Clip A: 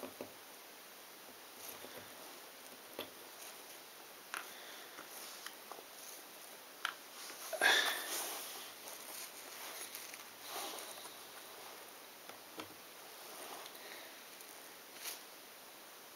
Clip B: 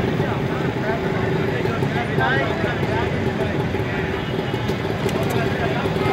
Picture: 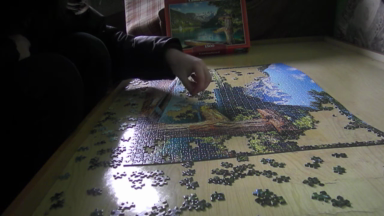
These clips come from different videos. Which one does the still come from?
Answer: A